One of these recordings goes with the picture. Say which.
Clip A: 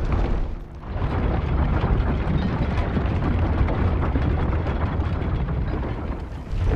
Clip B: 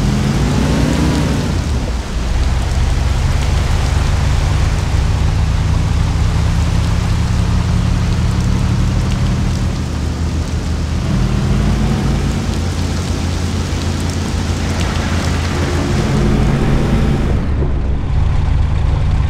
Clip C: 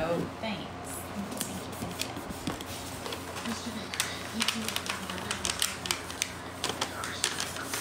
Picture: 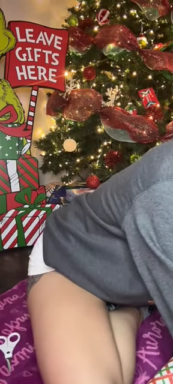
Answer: C